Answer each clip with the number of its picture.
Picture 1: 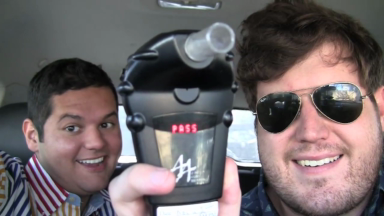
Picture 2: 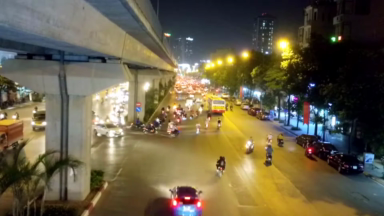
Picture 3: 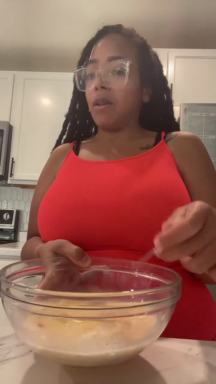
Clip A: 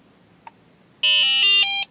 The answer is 1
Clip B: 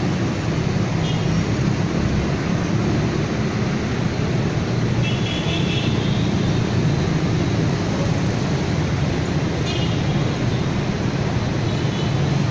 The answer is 2